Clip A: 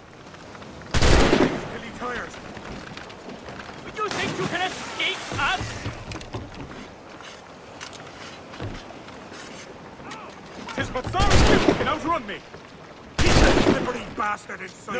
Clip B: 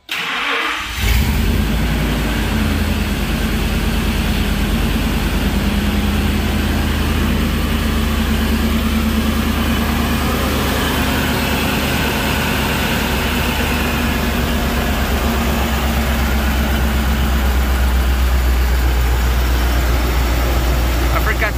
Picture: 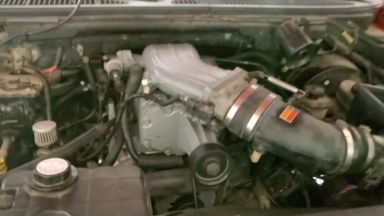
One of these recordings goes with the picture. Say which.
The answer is B